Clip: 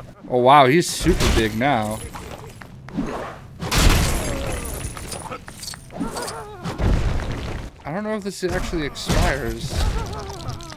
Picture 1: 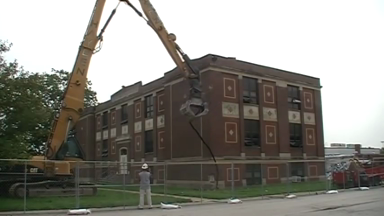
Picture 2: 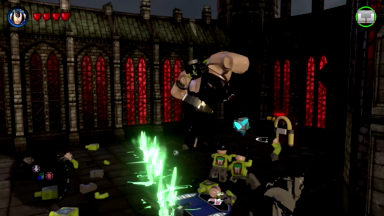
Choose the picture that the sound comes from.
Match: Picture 2